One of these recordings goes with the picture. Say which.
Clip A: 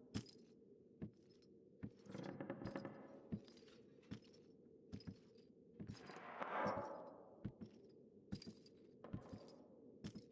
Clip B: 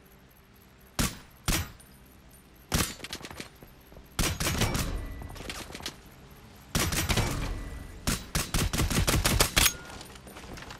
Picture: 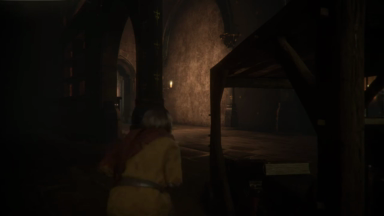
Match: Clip A